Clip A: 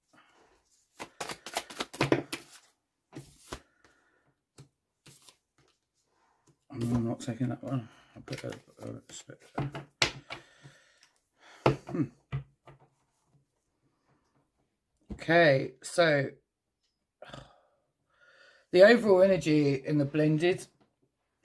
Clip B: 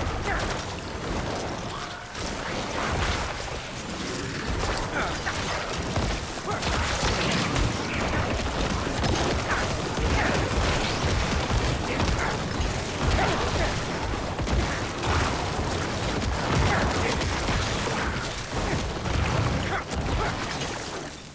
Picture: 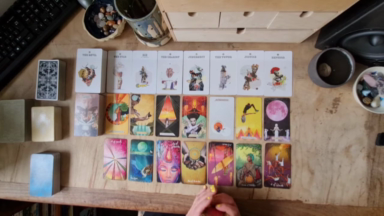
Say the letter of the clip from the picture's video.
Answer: A